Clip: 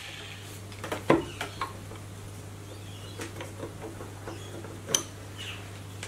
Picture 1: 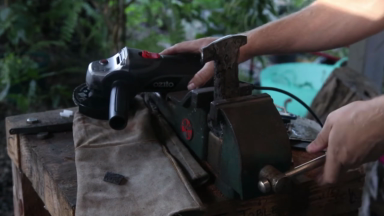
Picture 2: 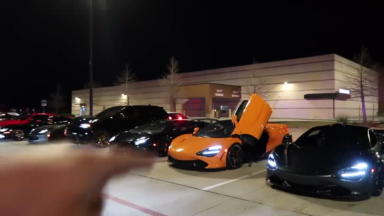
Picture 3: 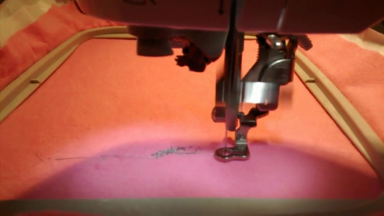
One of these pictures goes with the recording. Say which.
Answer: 1